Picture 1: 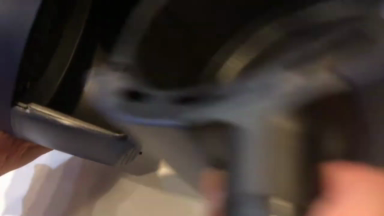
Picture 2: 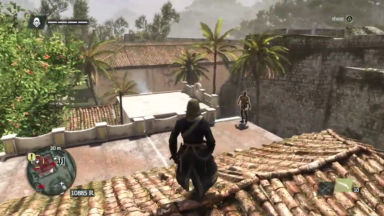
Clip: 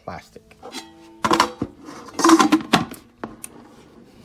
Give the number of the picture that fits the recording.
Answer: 1